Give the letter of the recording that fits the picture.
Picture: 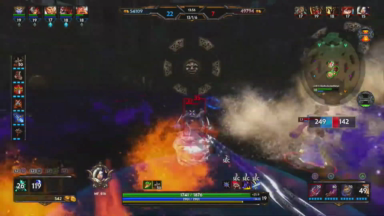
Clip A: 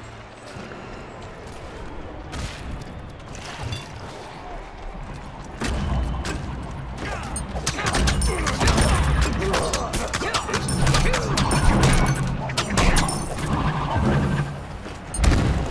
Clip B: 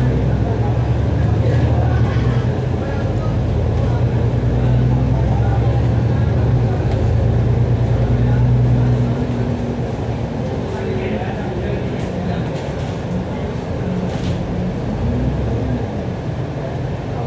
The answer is A